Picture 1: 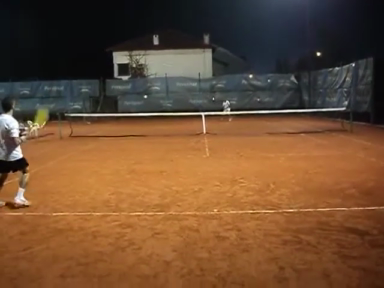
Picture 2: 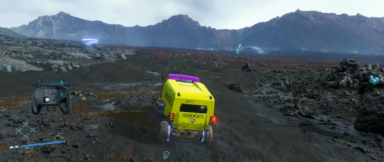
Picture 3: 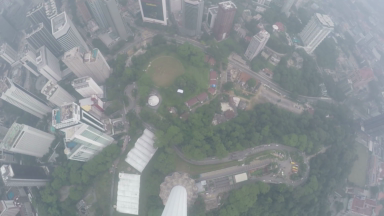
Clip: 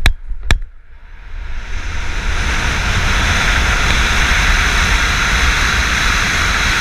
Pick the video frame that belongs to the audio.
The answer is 3